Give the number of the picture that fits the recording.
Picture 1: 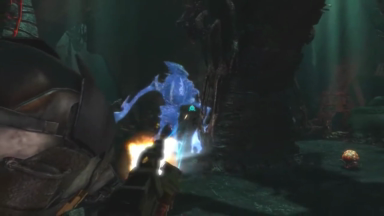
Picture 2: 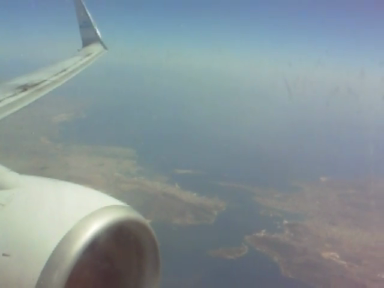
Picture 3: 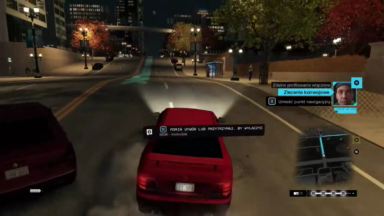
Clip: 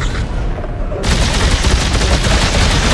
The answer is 1